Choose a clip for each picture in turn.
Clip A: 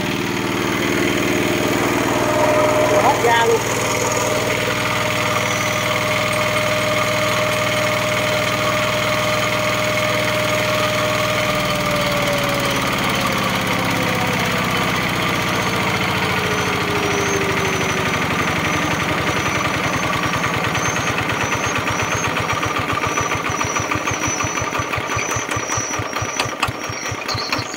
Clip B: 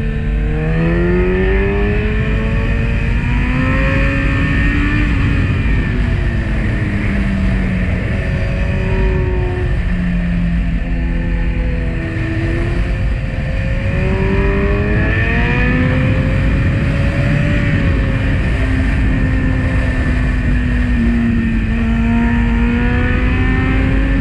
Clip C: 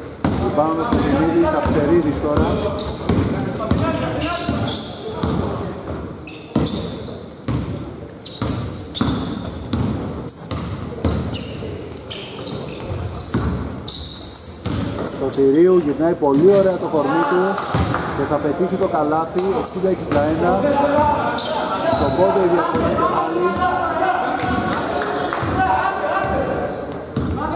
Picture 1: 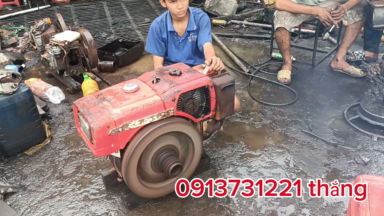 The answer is A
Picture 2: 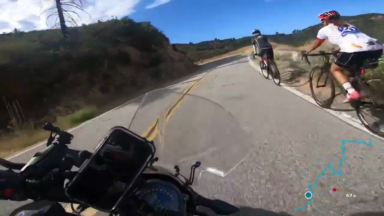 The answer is B